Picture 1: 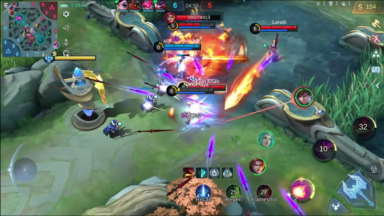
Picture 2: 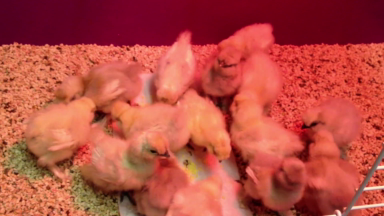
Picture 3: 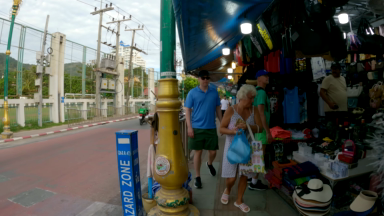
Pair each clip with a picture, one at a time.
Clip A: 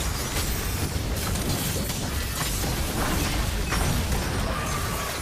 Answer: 1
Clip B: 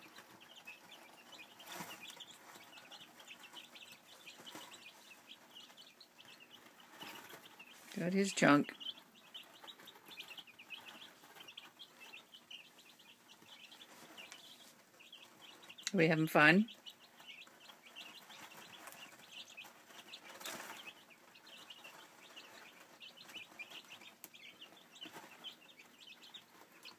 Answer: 2